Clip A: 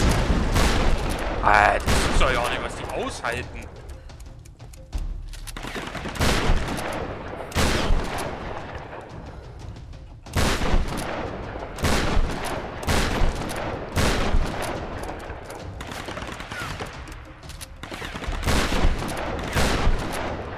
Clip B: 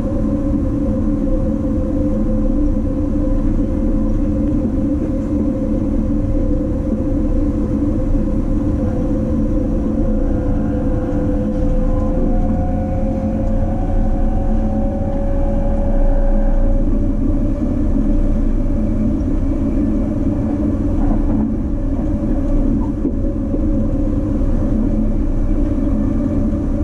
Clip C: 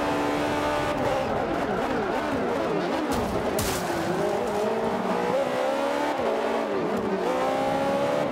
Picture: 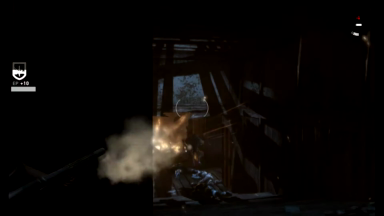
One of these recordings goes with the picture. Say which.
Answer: A